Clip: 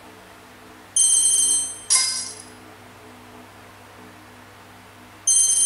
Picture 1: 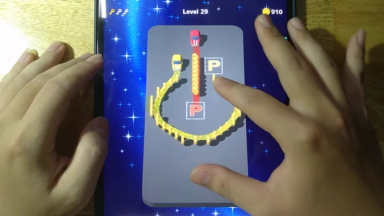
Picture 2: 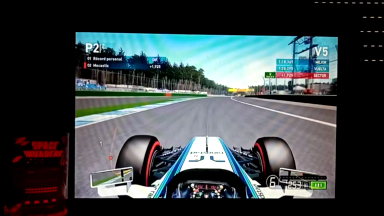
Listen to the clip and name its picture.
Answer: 1